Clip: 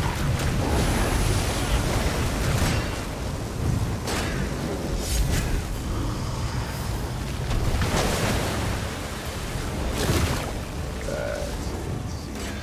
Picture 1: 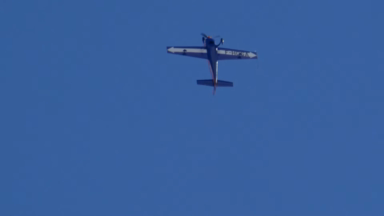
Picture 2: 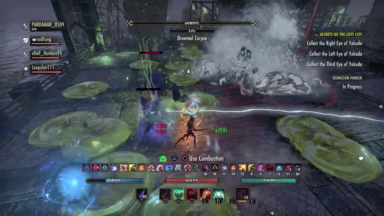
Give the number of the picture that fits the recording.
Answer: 2